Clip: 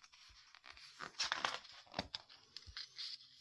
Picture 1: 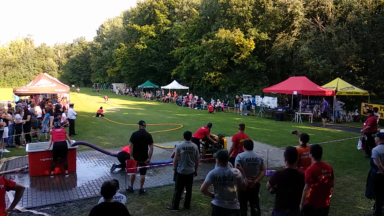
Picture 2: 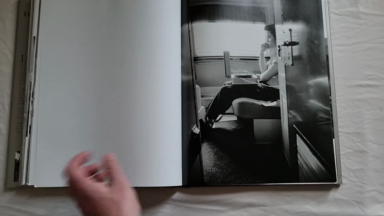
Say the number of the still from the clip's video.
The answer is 2